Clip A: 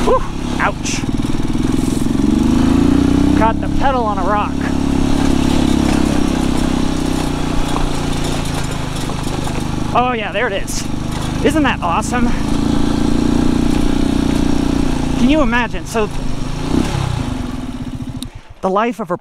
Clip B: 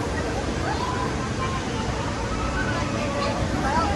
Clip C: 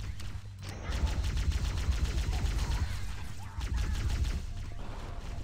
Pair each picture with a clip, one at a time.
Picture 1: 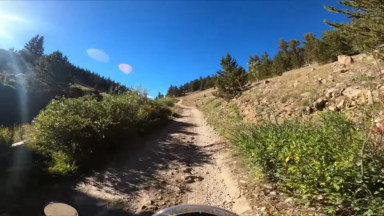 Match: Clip A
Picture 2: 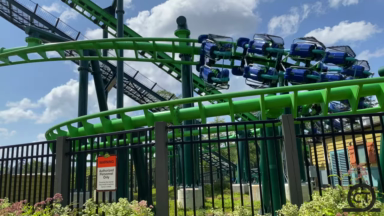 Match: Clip B